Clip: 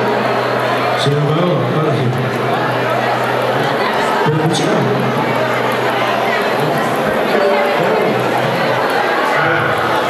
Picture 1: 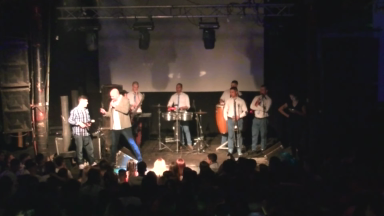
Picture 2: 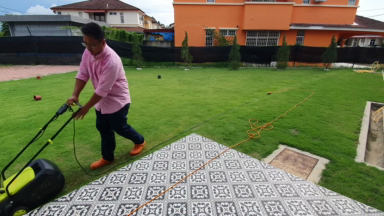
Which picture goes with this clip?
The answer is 1